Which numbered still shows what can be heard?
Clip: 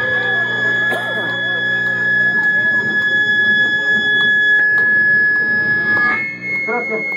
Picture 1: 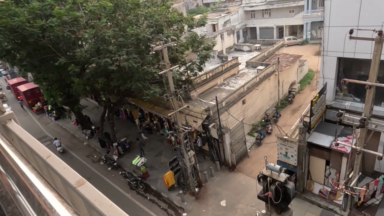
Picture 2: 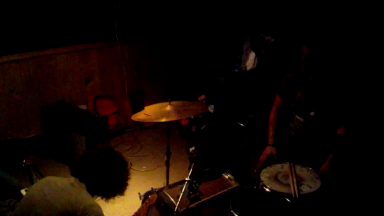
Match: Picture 2